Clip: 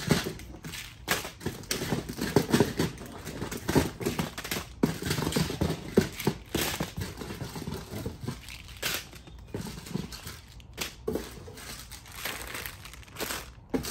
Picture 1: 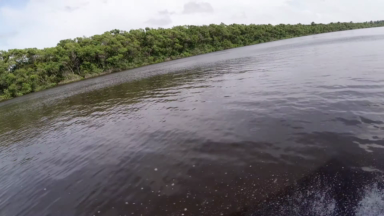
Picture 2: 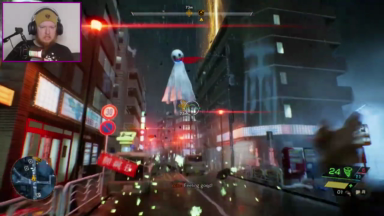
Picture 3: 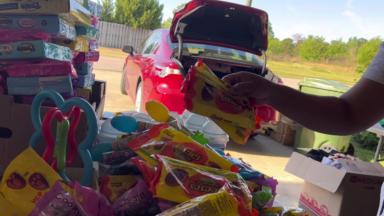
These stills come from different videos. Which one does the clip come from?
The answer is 3